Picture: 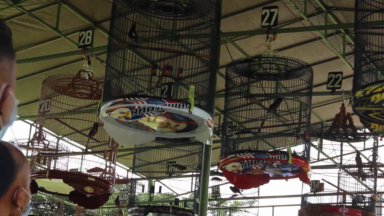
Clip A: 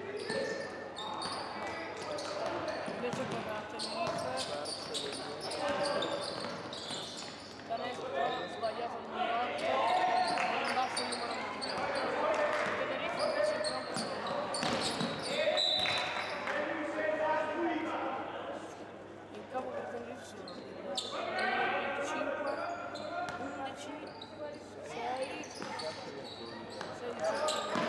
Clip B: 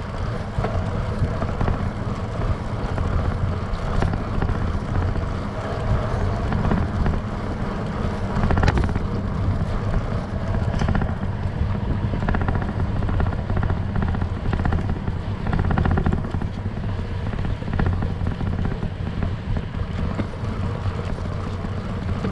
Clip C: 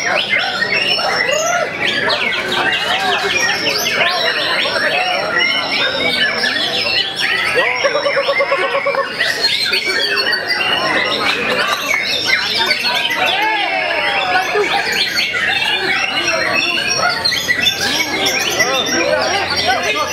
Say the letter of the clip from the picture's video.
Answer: C